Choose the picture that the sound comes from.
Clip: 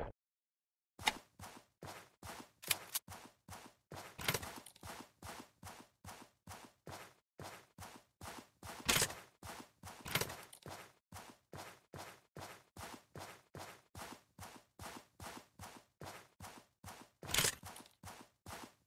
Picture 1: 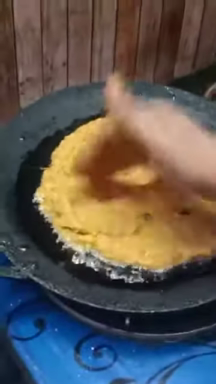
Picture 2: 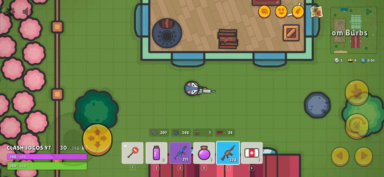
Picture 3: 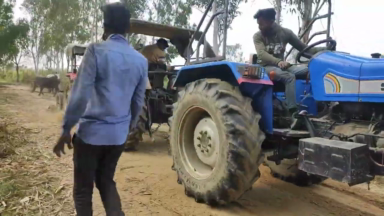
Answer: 2